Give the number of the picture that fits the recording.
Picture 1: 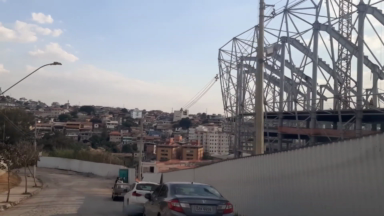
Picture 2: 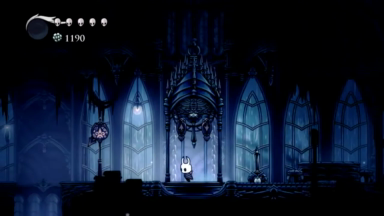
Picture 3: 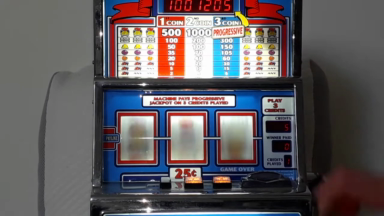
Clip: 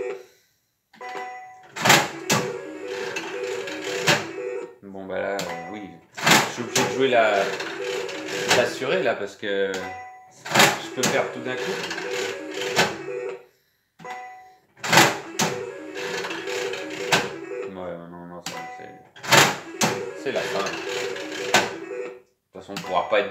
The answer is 3